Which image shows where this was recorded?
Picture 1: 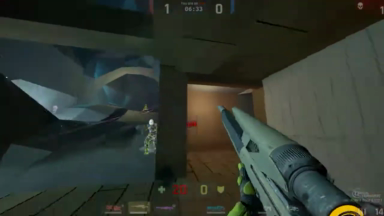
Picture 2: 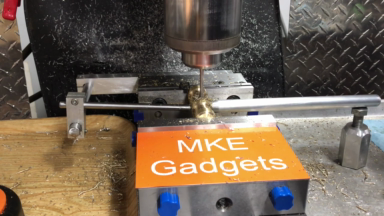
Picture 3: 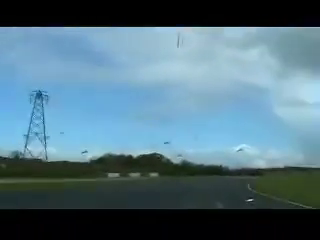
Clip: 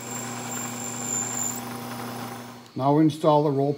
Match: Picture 2